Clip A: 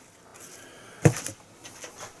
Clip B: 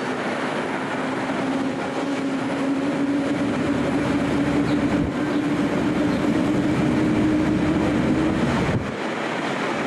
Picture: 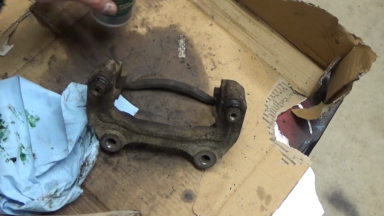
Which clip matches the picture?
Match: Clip A